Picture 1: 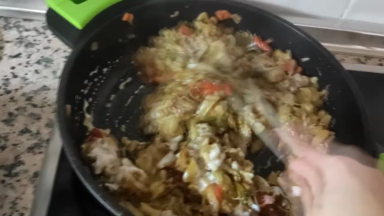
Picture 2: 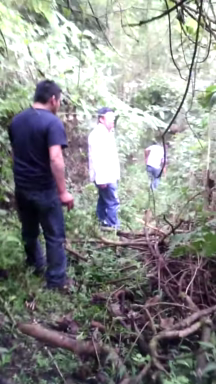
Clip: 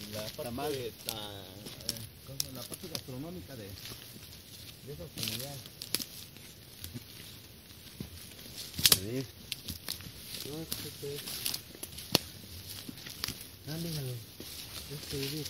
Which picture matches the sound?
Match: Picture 2